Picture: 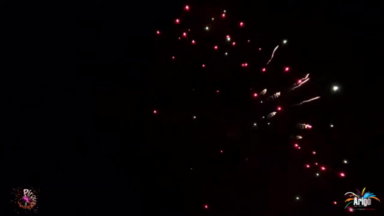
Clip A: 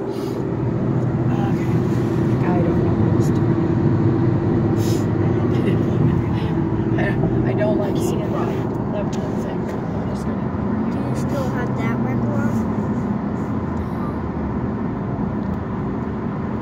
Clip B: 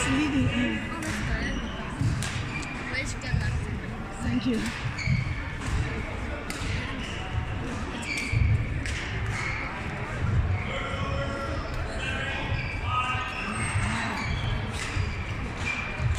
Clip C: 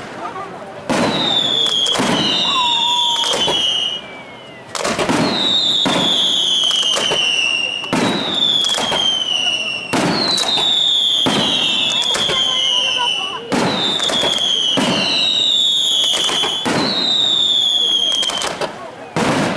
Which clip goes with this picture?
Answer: C